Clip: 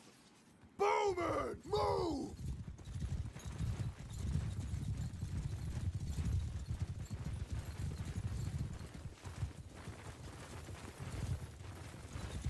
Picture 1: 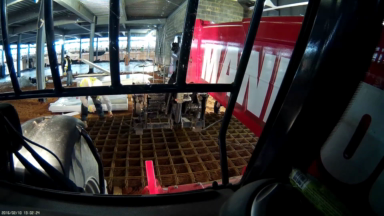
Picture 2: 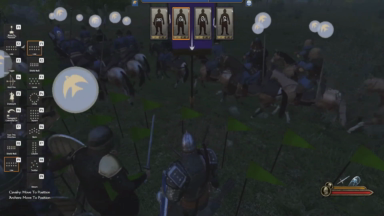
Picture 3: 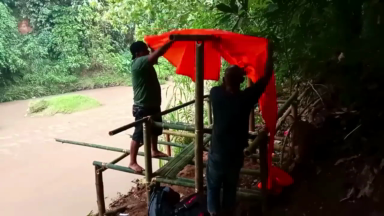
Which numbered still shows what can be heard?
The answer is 2